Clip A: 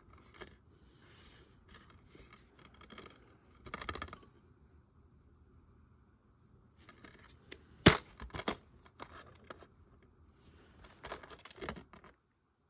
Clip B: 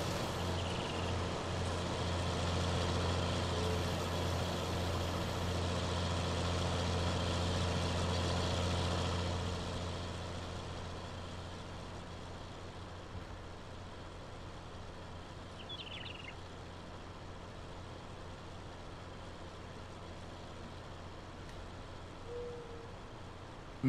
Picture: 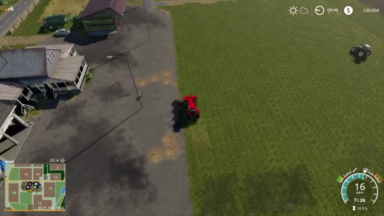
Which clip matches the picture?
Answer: B